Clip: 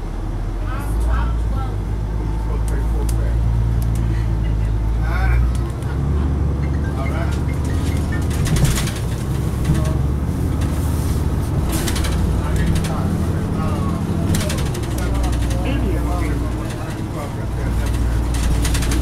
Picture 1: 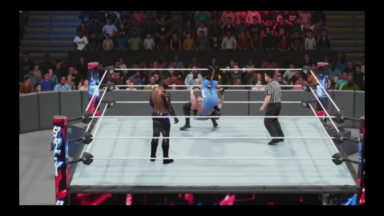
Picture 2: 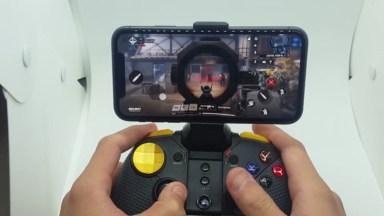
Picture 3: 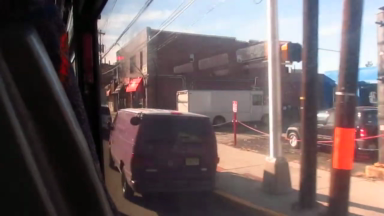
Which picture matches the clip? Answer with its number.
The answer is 3